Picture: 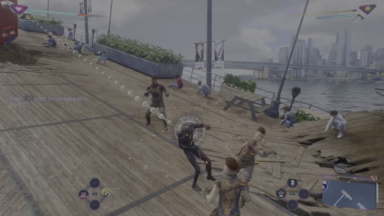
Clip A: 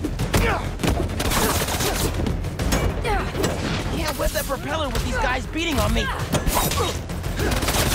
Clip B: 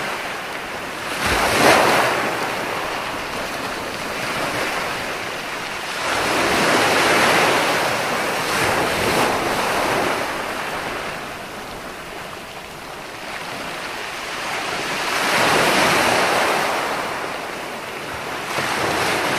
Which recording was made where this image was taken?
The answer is A